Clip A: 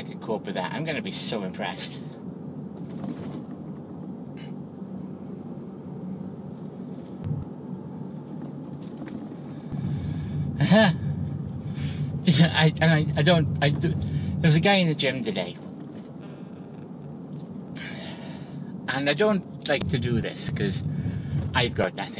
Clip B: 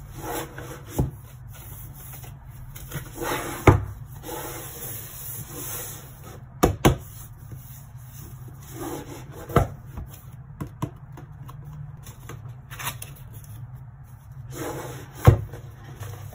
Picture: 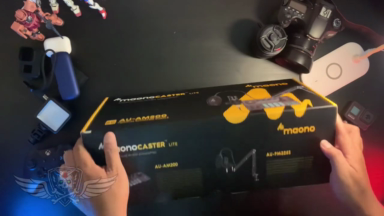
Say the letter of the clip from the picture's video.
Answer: B